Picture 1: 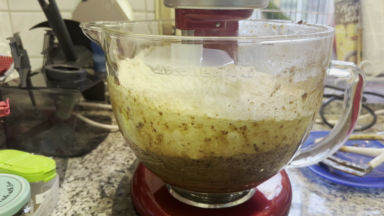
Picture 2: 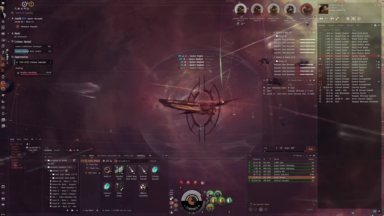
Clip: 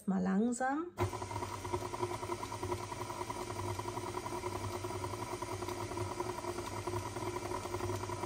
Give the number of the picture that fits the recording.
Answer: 1